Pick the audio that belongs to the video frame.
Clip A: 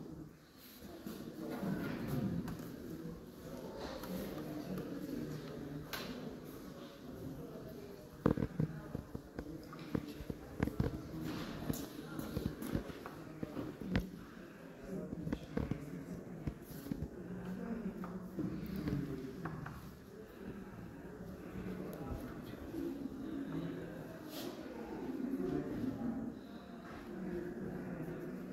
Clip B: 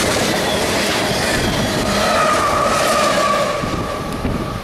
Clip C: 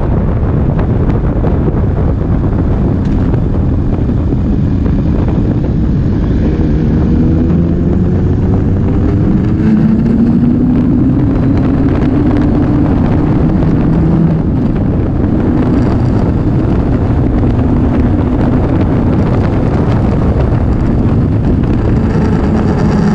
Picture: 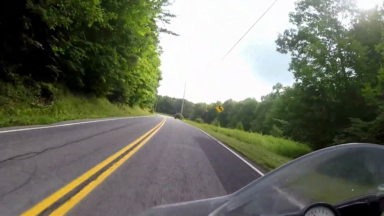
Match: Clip C